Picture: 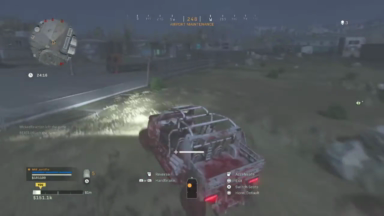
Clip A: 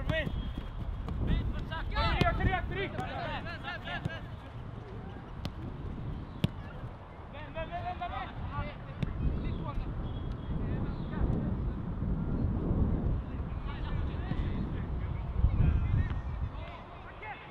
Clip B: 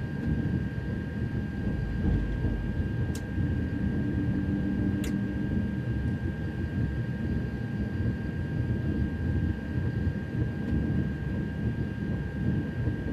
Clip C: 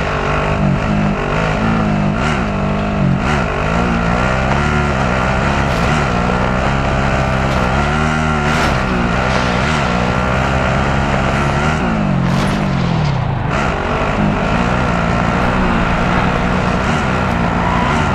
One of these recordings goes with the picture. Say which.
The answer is C